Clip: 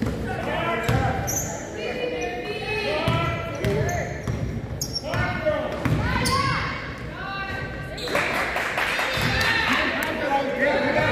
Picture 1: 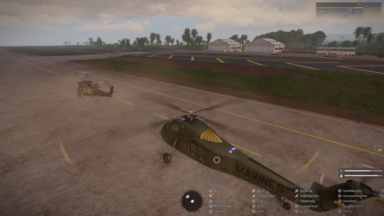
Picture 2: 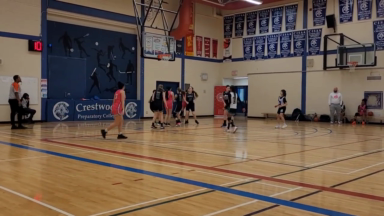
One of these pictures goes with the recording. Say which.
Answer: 2